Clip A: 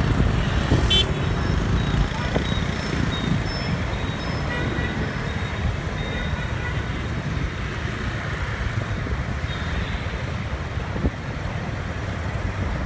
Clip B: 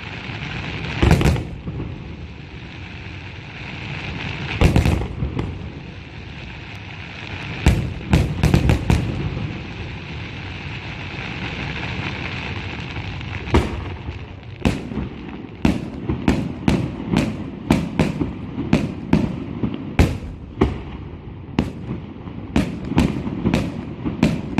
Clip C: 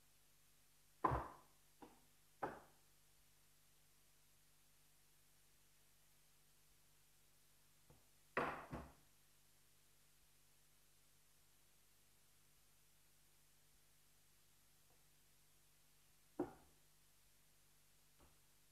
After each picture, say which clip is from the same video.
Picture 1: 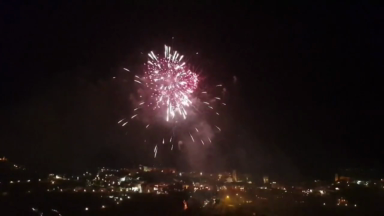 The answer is B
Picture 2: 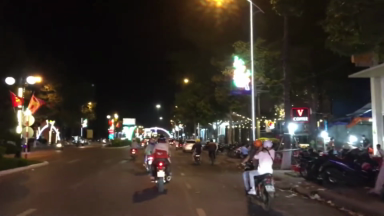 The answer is A